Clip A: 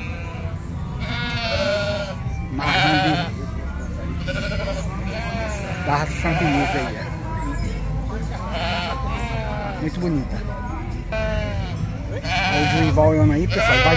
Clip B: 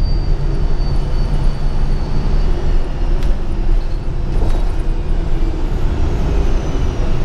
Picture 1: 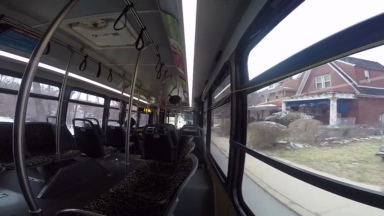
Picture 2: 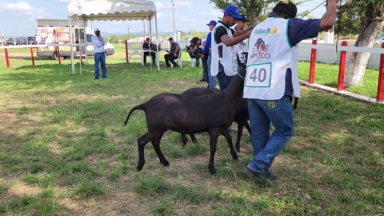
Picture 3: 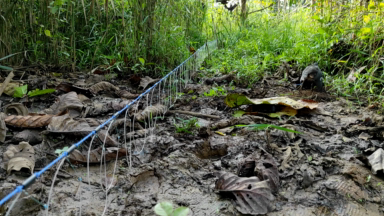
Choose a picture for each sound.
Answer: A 2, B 1